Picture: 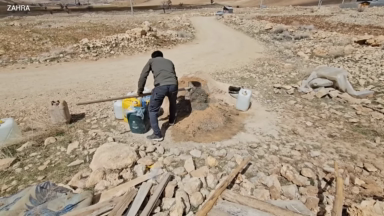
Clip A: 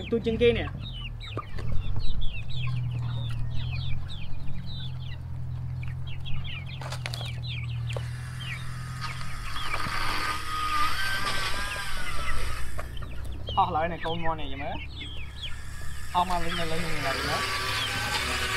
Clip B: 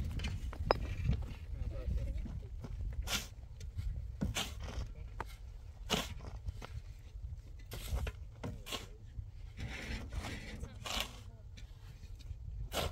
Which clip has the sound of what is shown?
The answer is B